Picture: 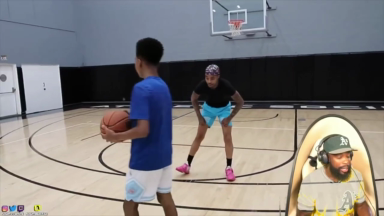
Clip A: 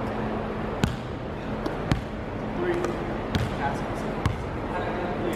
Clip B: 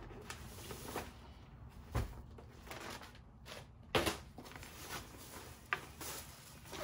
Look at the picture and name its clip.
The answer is A